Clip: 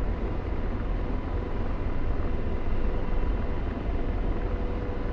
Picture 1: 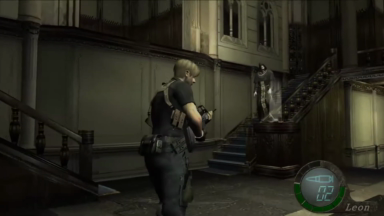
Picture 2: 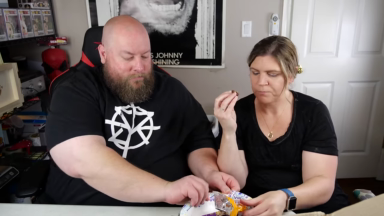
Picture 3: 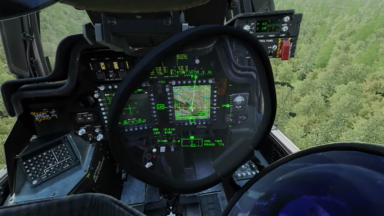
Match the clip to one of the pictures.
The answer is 3